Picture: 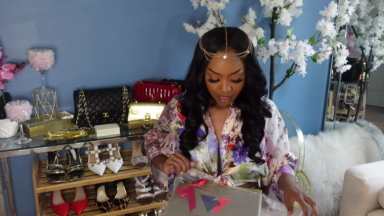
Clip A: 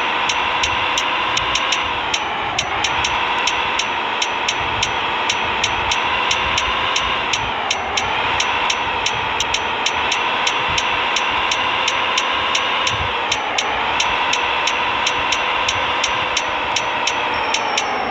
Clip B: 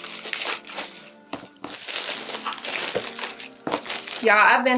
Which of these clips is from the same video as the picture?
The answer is B